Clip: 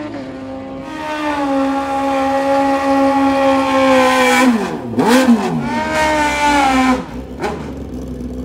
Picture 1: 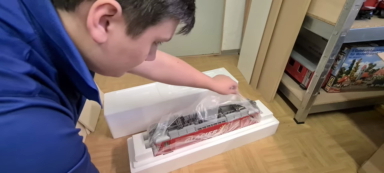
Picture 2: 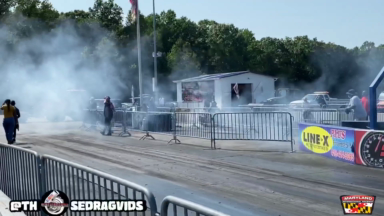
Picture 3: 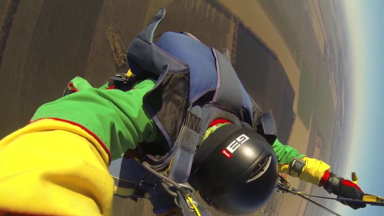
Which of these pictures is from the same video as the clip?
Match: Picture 2